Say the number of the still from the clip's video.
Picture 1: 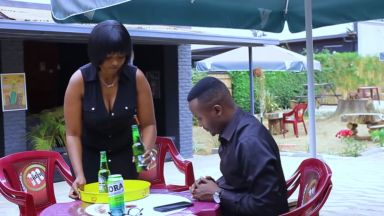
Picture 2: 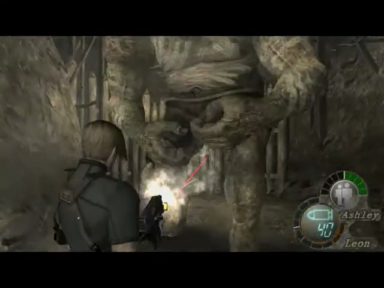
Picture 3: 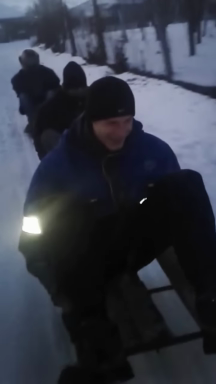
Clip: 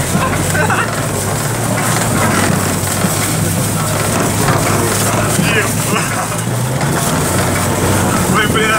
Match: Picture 3